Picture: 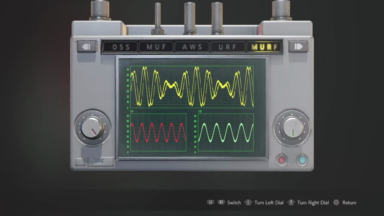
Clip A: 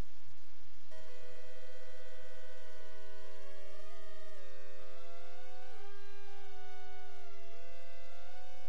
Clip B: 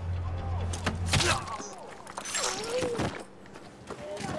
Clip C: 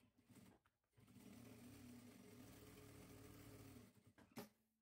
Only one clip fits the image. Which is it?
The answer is A